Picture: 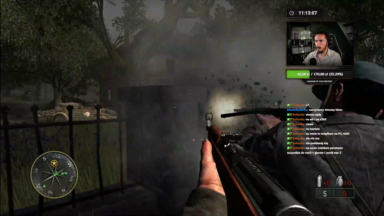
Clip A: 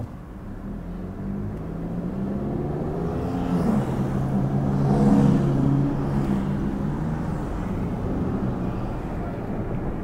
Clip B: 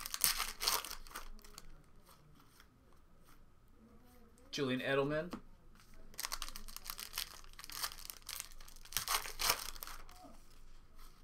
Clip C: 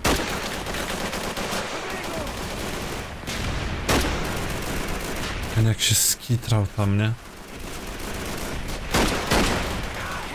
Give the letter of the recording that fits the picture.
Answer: C